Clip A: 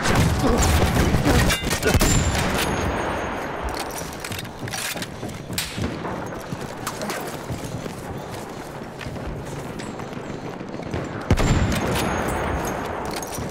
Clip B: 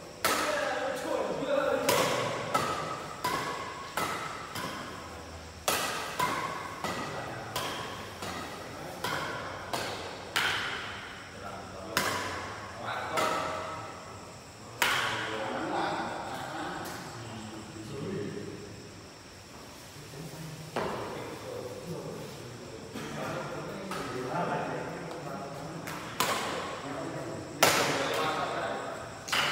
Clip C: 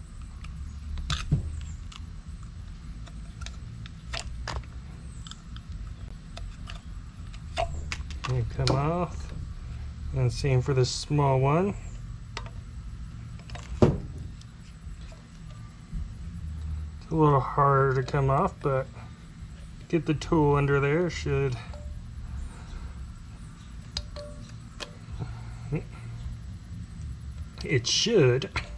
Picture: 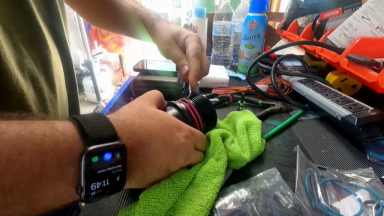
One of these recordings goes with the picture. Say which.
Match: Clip C